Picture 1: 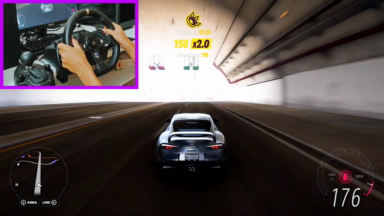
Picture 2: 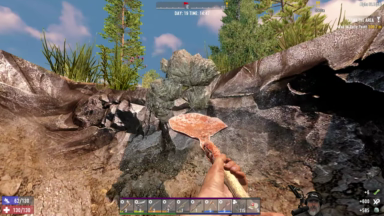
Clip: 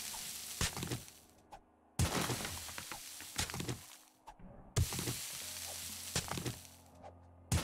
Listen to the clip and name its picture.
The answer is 2